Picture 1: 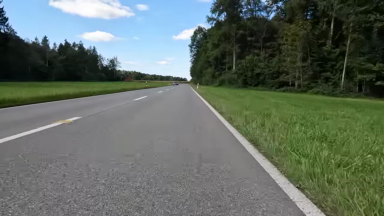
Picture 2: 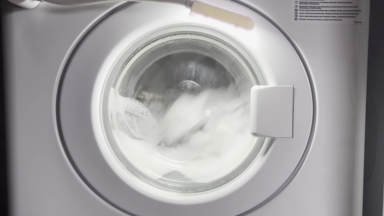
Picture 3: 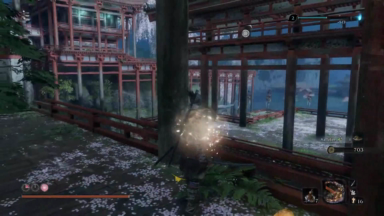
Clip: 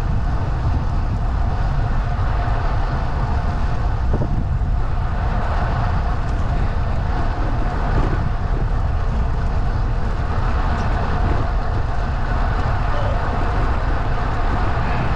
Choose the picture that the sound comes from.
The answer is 1